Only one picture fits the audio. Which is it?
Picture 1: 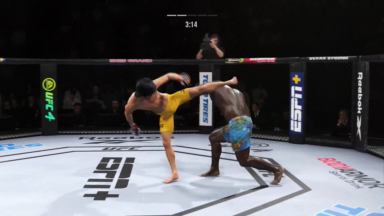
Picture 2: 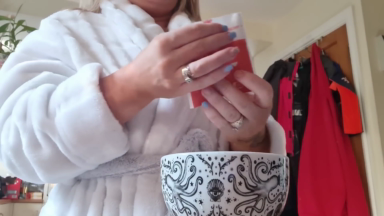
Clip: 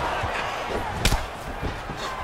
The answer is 1